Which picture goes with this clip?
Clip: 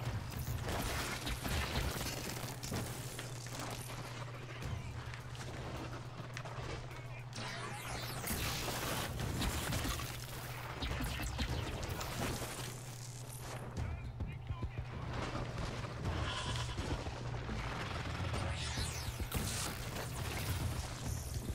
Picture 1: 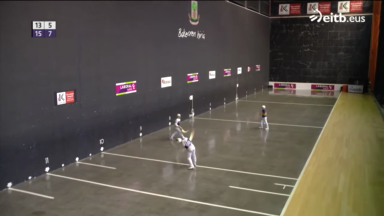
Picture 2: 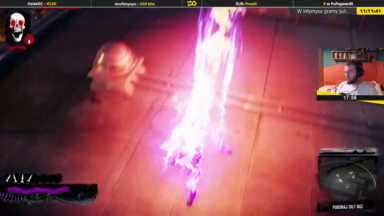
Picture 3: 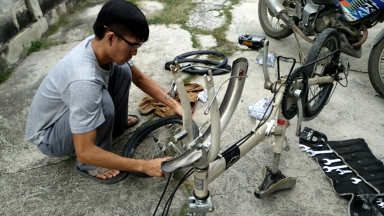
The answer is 2